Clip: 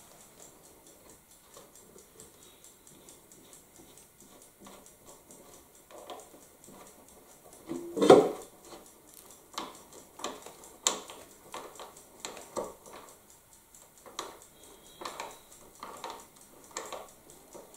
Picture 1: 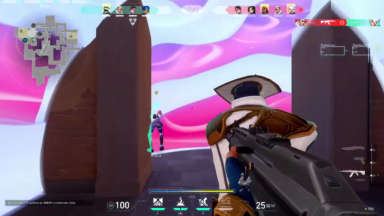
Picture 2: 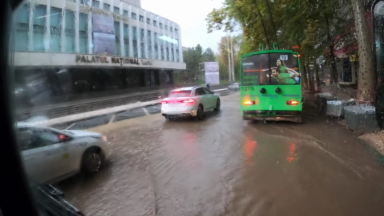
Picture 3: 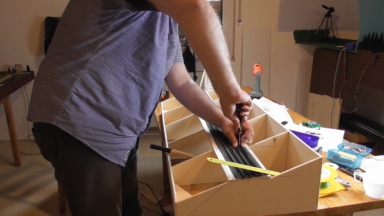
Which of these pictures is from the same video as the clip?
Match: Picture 3